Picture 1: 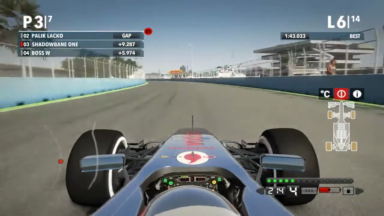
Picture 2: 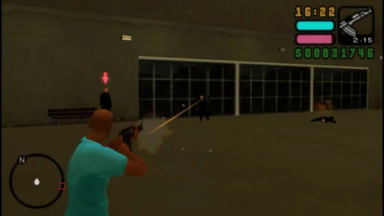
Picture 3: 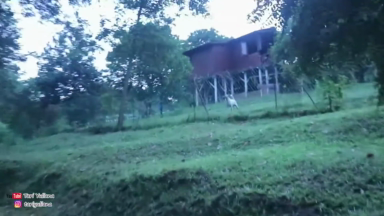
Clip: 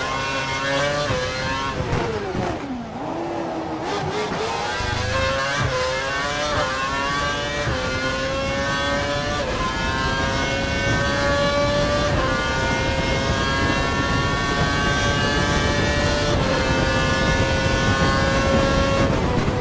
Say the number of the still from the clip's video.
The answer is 1